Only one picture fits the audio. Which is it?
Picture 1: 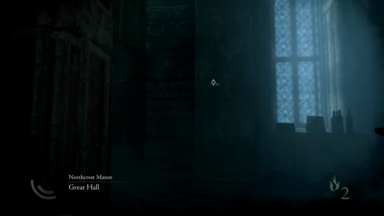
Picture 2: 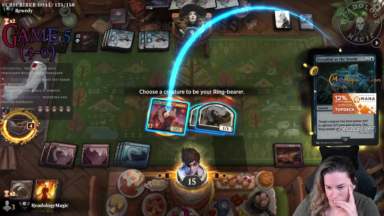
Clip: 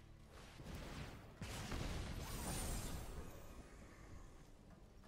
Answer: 2